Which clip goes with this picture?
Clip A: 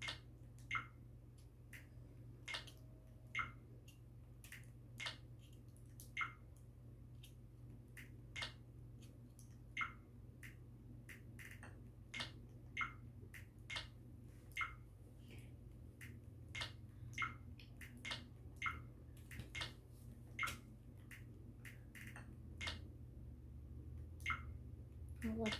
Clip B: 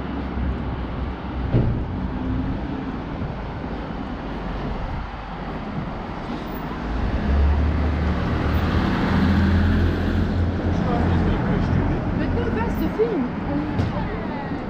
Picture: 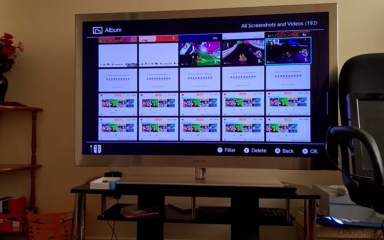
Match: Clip A